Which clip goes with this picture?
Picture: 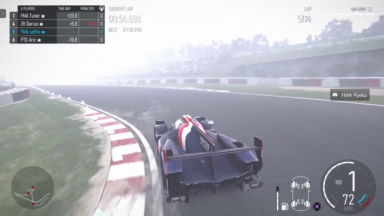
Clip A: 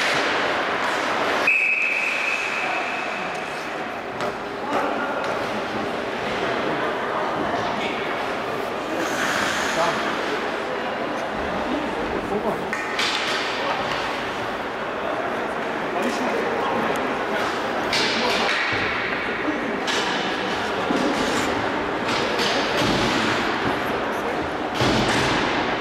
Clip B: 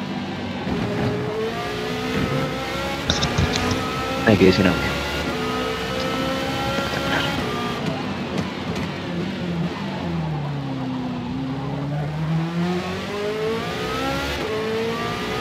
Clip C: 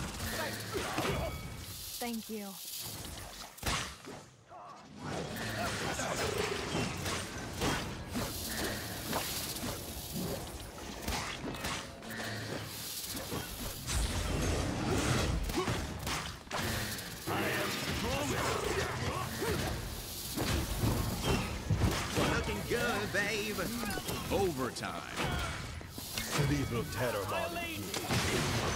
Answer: B